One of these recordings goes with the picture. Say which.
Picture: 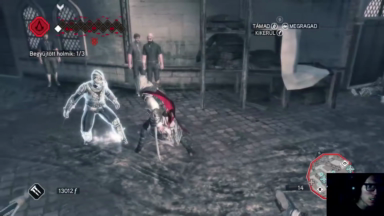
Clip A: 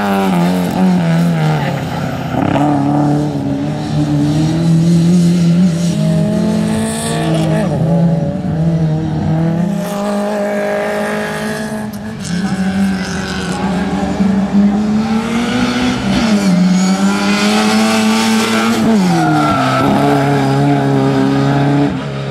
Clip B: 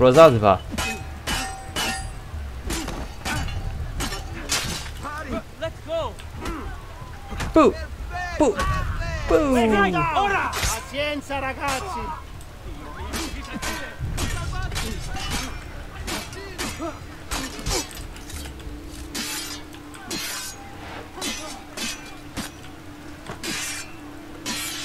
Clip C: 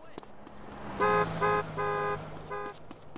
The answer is B